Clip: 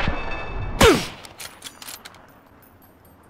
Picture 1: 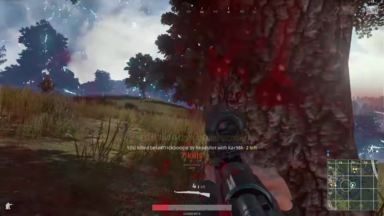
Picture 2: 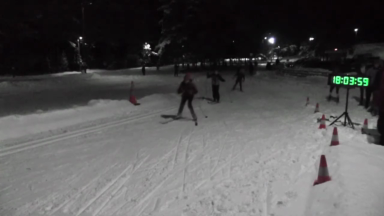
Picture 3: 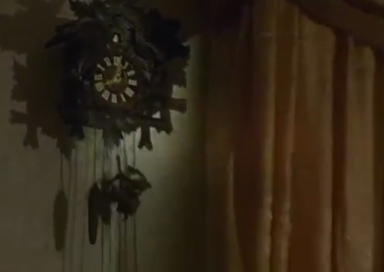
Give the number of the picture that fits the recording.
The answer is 1